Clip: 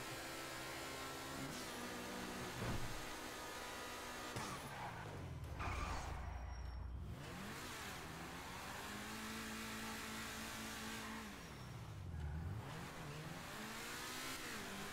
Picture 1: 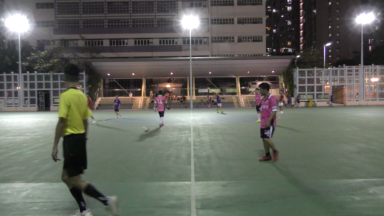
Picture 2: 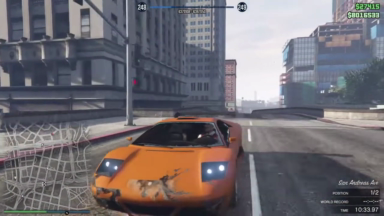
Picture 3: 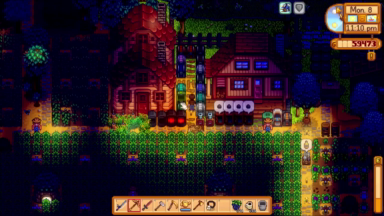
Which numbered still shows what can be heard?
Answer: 2